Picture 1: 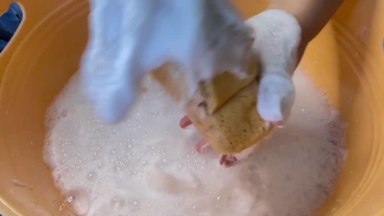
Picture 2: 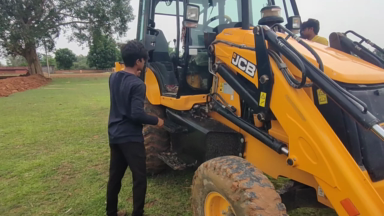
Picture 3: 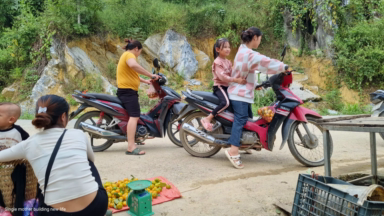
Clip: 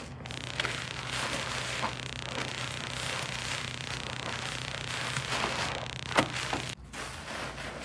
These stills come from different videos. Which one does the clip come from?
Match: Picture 1